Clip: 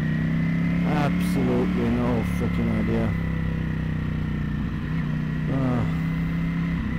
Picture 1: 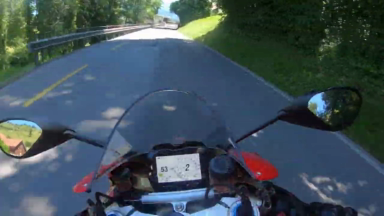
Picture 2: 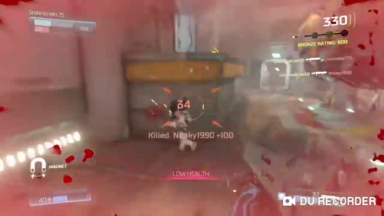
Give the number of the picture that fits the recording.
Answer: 1